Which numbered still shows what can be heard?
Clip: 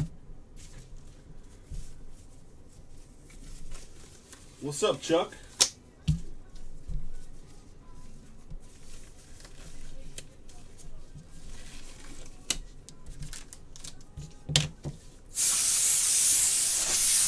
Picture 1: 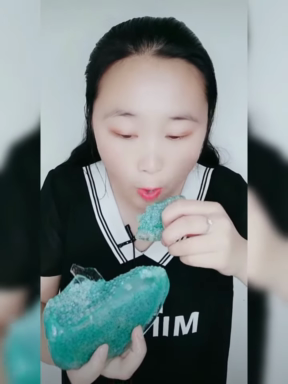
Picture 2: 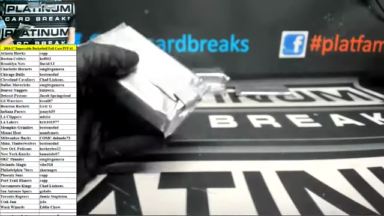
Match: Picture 2